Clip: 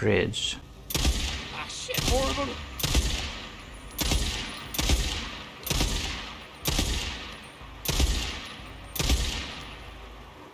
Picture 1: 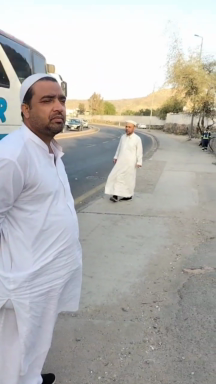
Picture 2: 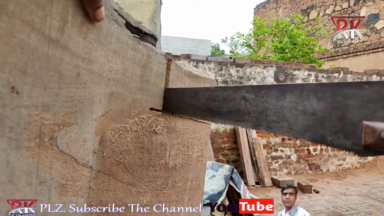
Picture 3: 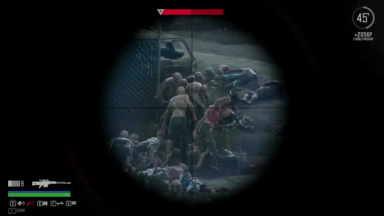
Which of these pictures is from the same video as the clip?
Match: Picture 3